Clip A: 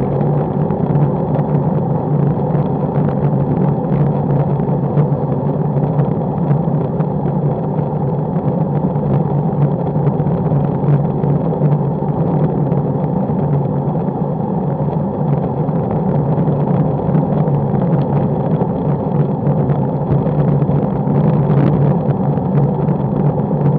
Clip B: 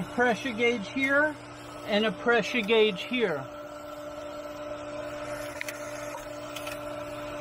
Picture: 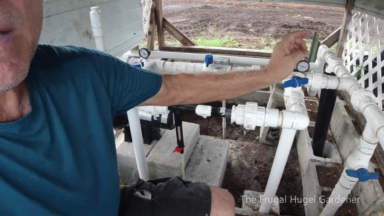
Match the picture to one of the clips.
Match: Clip B